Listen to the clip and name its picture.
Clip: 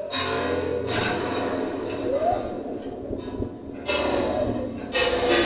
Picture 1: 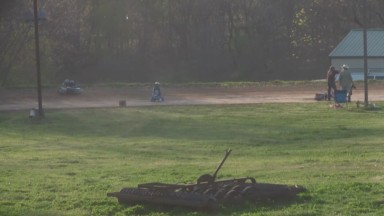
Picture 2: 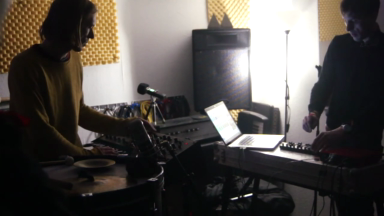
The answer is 2